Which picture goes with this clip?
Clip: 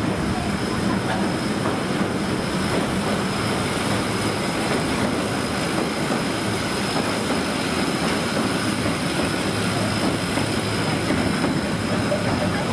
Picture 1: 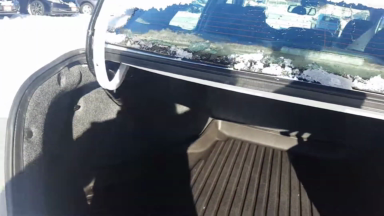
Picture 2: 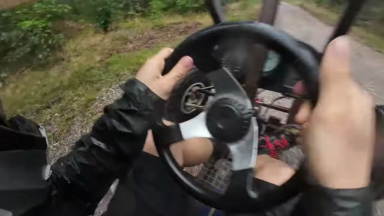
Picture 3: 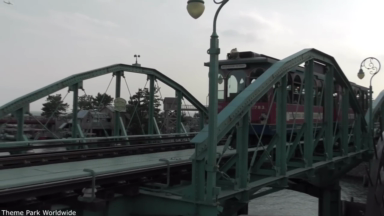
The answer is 3